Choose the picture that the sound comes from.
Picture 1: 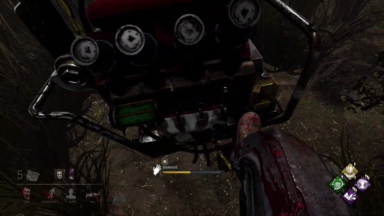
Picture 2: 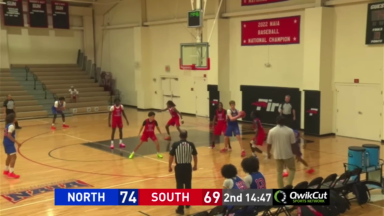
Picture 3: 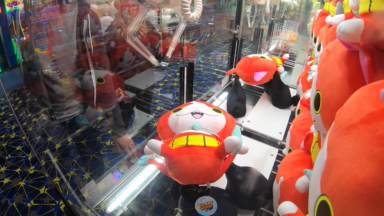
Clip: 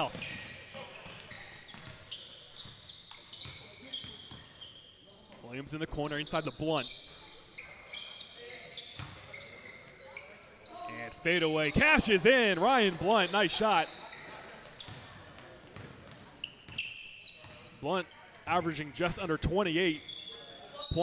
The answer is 2